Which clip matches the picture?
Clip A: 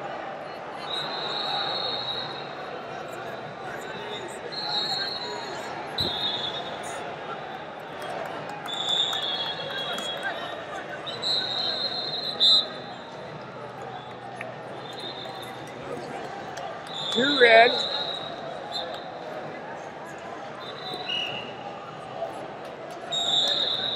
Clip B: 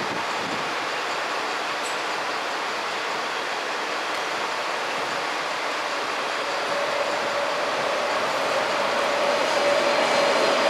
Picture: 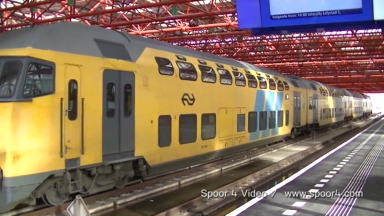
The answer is B